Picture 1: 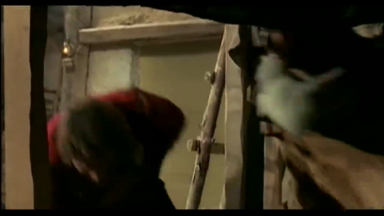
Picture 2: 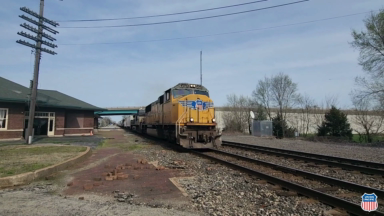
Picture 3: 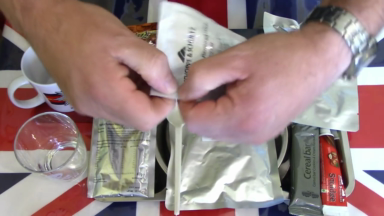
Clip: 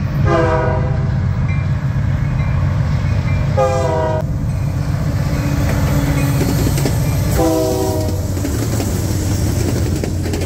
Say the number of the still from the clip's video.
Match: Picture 2